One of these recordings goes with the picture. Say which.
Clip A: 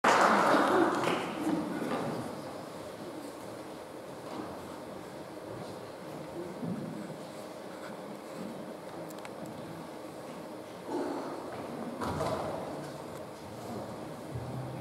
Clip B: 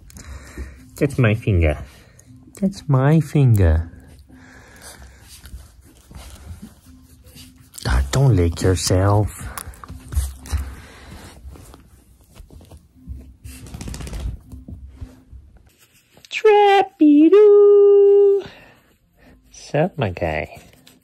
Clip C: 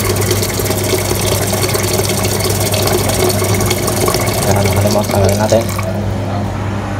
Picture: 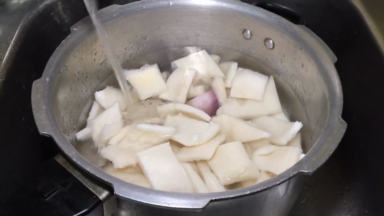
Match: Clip C